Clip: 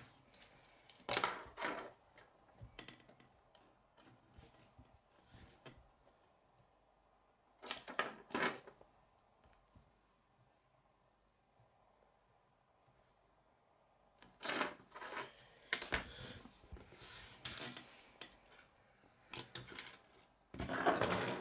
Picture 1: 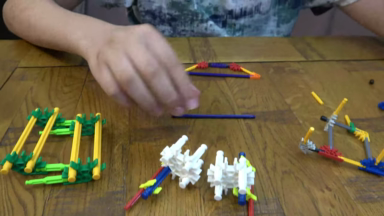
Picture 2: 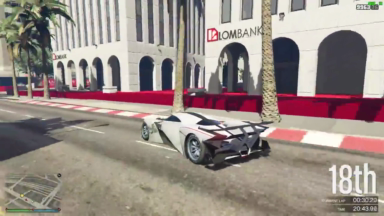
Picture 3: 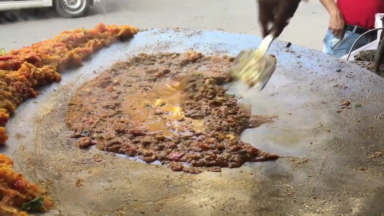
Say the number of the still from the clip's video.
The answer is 1